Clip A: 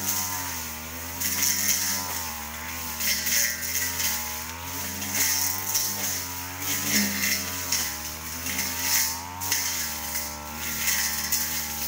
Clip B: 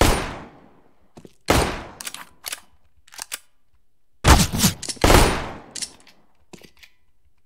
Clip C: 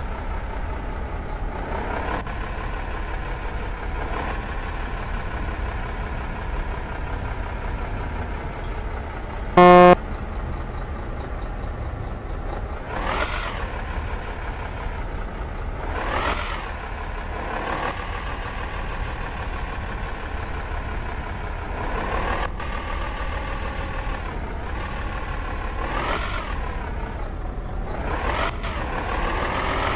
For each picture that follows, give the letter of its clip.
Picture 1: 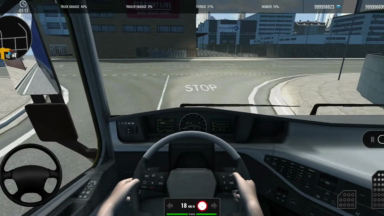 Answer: C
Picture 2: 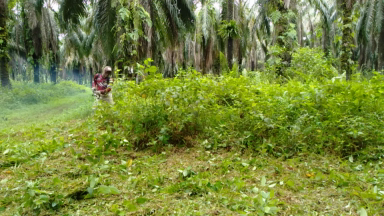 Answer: A